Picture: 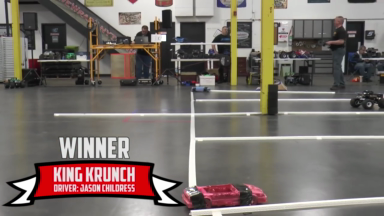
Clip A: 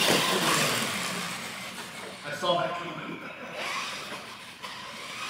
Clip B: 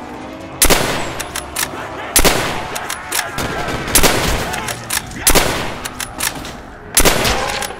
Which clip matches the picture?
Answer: A